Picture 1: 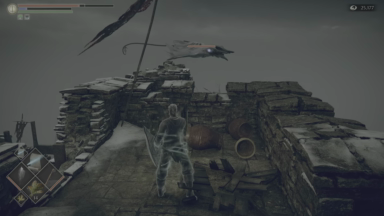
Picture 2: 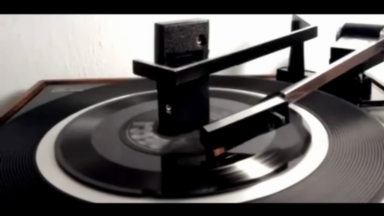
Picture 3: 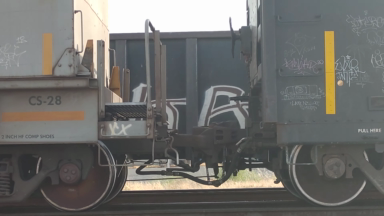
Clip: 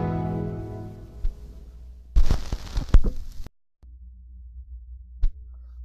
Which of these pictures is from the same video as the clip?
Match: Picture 2